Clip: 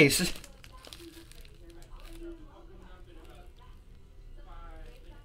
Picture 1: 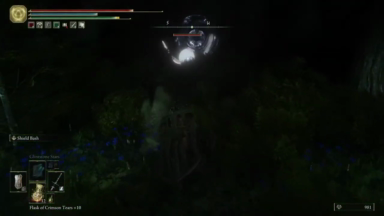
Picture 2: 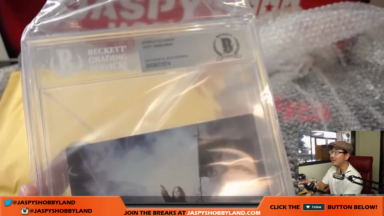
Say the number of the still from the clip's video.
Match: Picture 2